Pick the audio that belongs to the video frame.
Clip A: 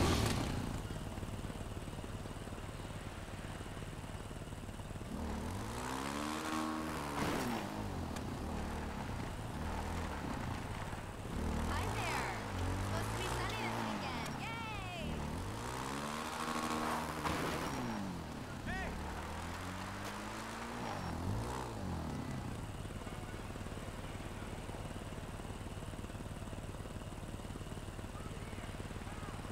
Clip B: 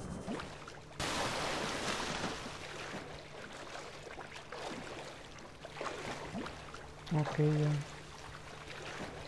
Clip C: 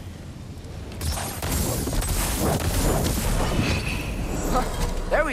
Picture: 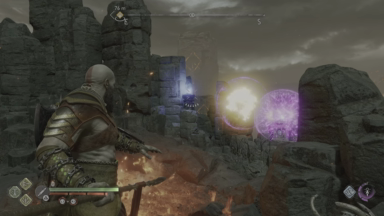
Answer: C